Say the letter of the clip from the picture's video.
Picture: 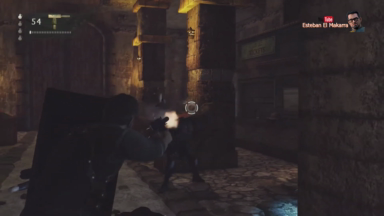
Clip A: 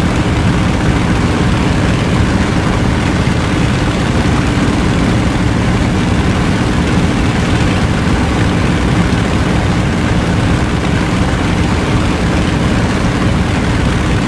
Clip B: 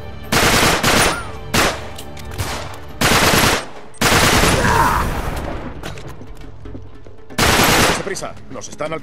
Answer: B